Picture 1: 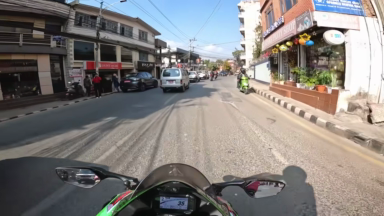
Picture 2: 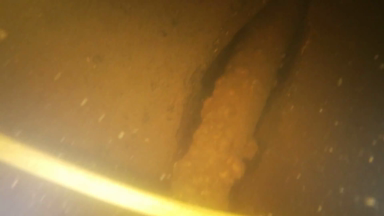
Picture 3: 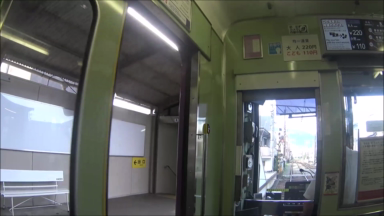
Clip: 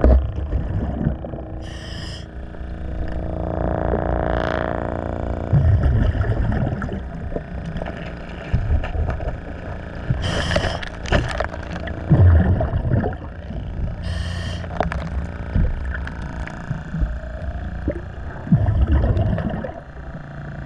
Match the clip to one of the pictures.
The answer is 2